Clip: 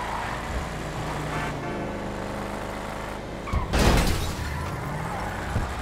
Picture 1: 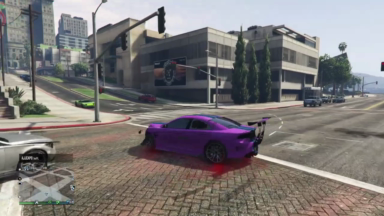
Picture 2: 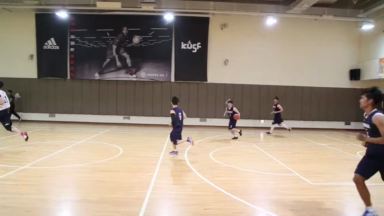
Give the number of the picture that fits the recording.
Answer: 1